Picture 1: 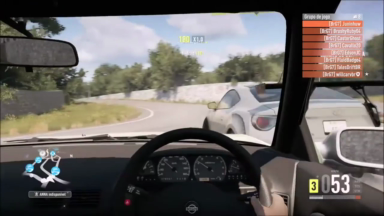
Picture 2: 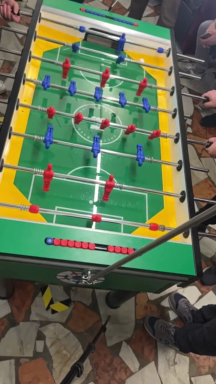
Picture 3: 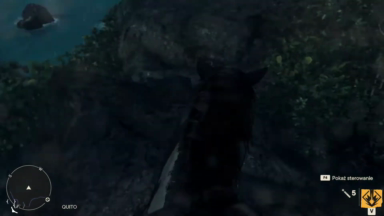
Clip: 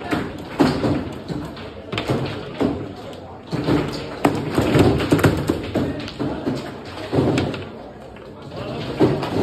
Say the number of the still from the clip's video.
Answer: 2